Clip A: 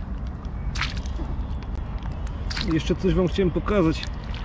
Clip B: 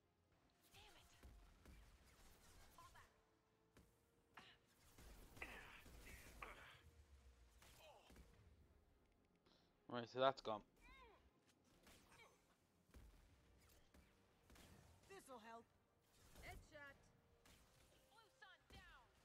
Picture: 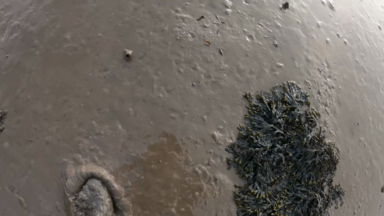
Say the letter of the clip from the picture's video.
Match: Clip A